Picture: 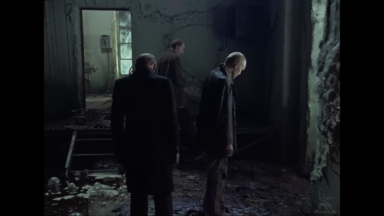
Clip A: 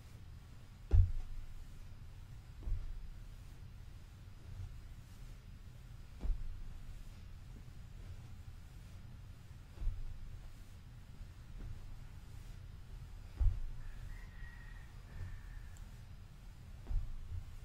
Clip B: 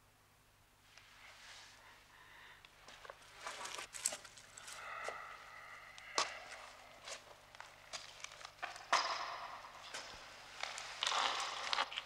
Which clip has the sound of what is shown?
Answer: B